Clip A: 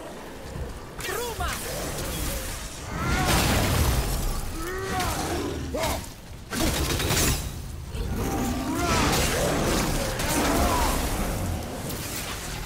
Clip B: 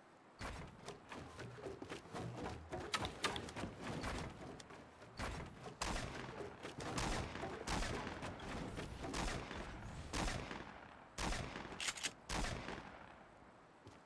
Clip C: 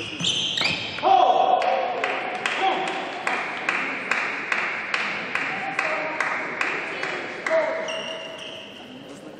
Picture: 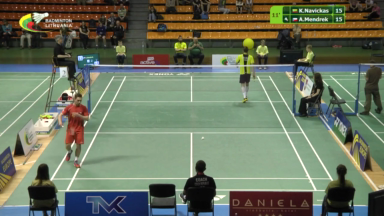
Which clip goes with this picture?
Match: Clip C